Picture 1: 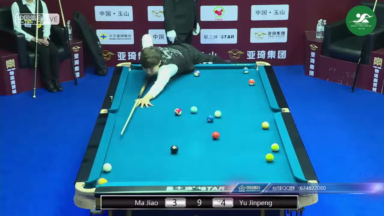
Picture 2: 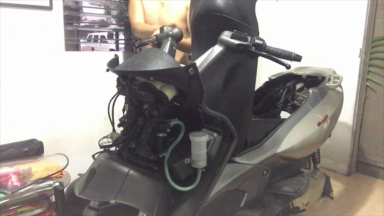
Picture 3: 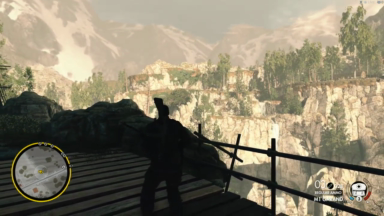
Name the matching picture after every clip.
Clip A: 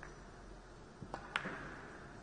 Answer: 1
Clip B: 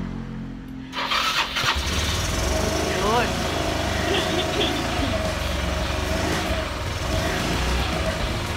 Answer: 2